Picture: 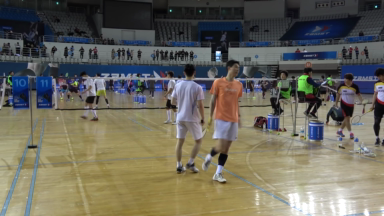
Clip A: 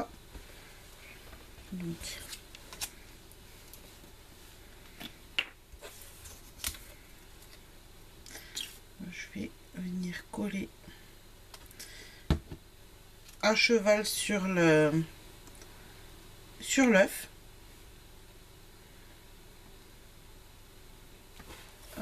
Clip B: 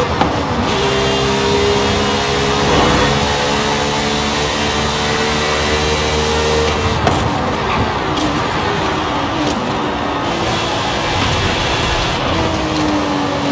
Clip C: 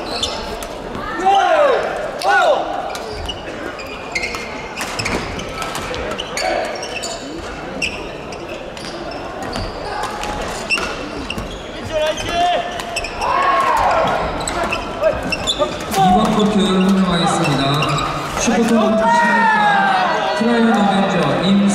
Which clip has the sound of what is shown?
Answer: C